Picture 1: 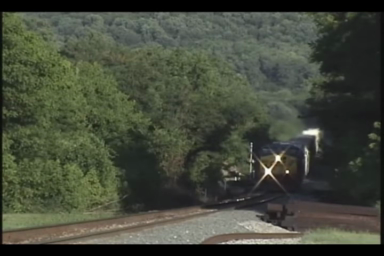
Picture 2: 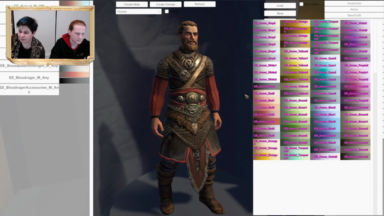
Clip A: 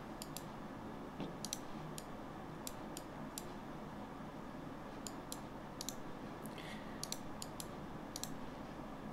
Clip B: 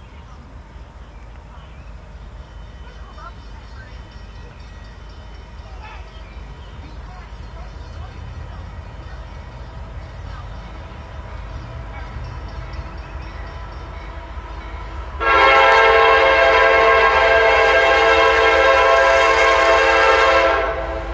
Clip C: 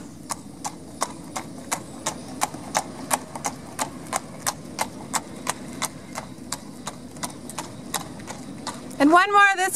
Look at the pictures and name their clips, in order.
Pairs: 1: B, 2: A